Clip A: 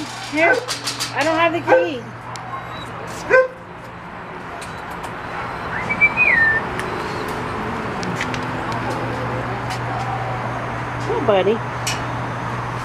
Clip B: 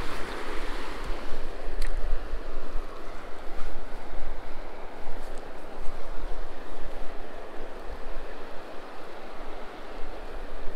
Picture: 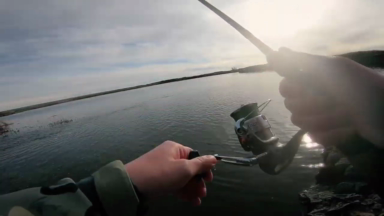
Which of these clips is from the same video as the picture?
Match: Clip B